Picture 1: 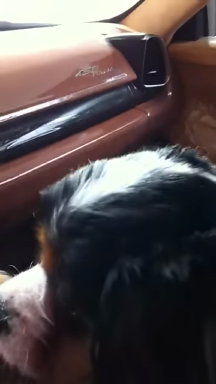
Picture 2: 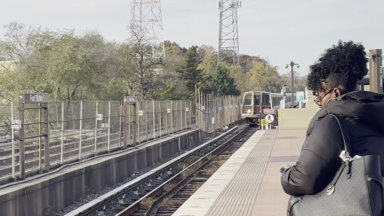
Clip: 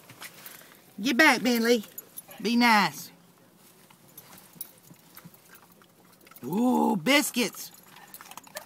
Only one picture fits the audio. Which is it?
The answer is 1